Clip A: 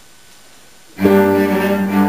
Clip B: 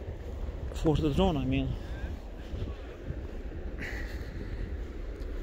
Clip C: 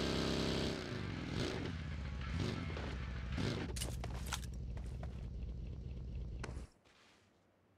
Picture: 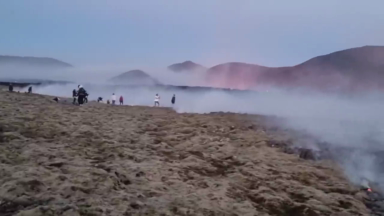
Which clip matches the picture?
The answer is B